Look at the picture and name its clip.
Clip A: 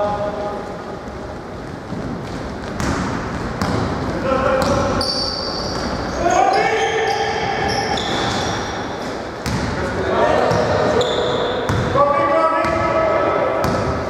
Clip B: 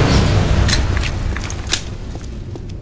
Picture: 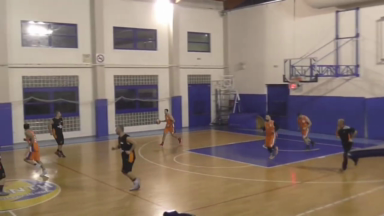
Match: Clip A